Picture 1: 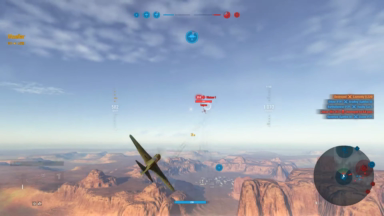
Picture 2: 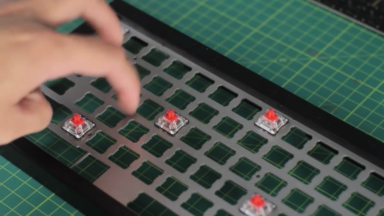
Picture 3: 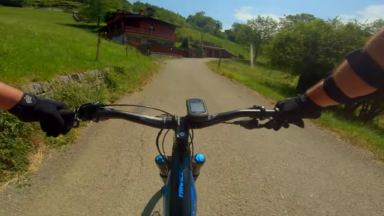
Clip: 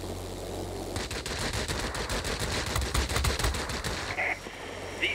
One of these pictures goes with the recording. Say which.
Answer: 1